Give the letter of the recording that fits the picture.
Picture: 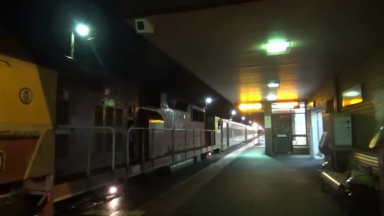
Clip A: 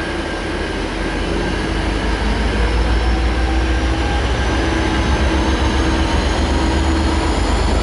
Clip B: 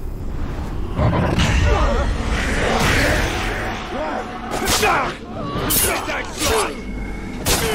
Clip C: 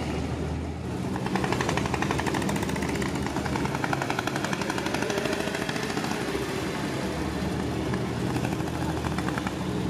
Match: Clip A